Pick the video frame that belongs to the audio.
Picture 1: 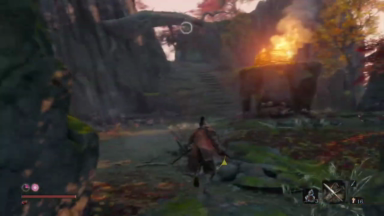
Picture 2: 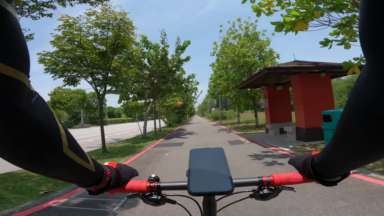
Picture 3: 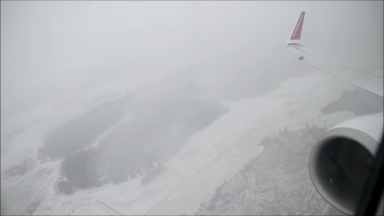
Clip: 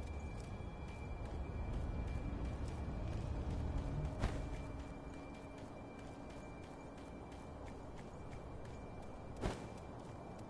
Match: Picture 1